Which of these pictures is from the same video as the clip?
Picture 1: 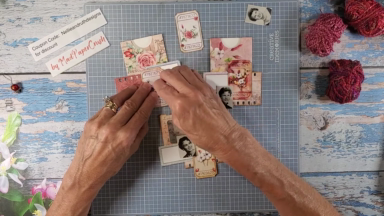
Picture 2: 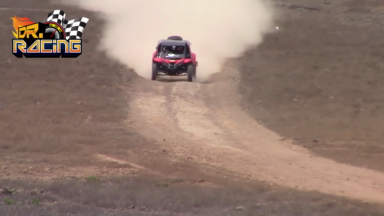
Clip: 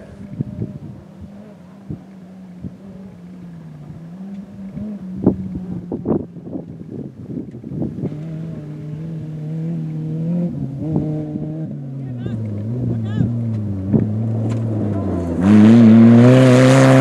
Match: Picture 2